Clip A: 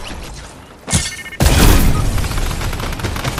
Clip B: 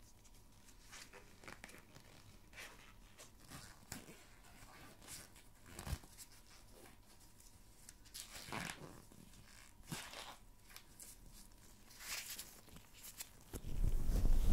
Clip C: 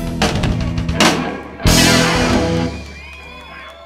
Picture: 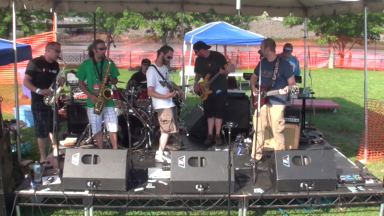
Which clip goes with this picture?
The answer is C